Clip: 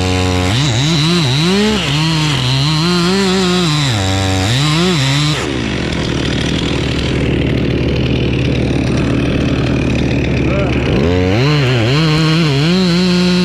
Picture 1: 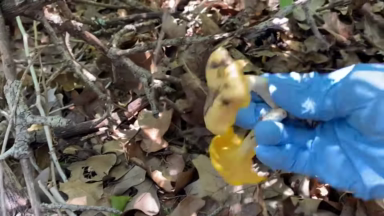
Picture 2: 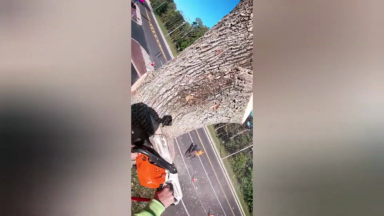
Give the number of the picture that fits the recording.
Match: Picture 2